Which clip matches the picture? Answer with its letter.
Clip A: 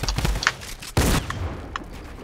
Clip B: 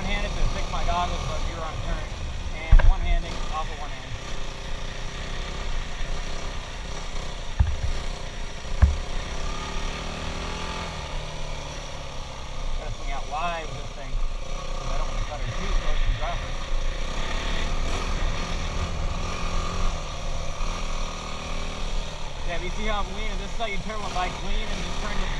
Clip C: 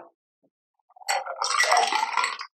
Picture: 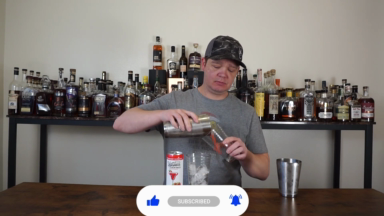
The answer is C